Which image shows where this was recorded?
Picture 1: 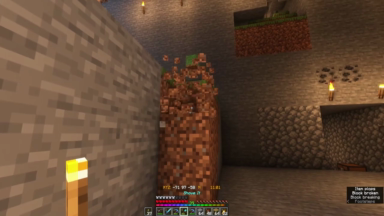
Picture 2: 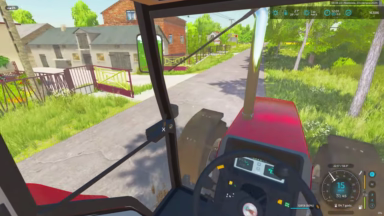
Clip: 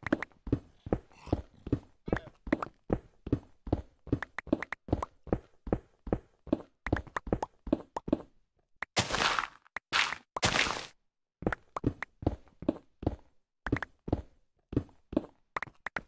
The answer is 1